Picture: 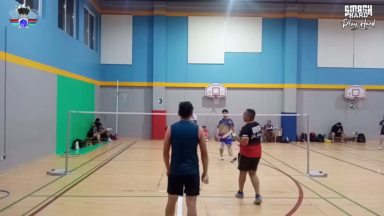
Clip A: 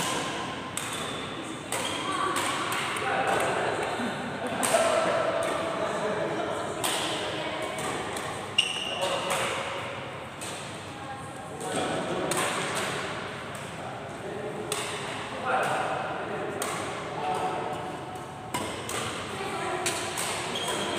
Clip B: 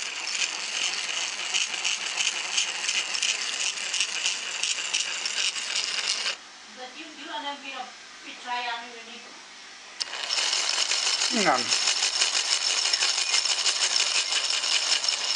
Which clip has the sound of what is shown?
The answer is A